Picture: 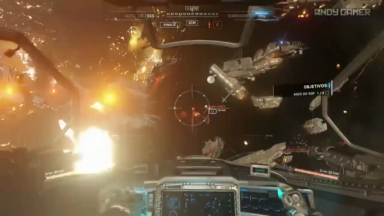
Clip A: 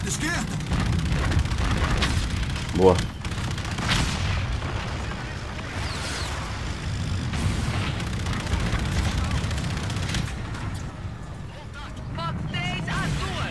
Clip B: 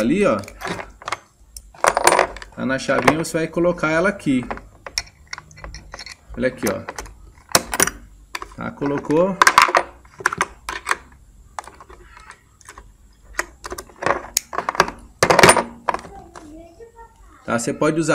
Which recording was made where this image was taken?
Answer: A